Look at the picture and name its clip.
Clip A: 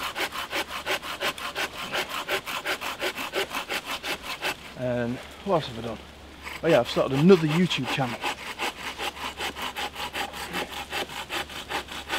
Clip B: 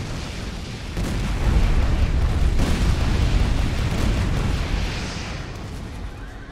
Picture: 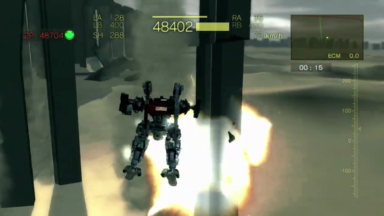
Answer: B